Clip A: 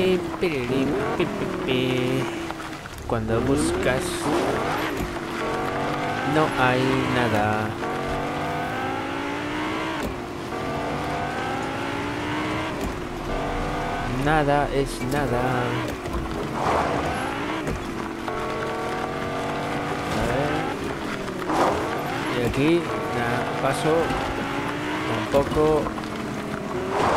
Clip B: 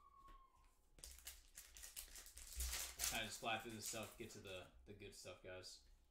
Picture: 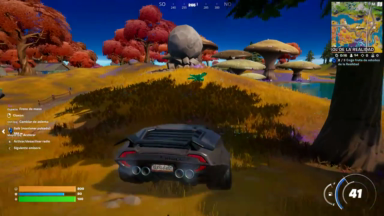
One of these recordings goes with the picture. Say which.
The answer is A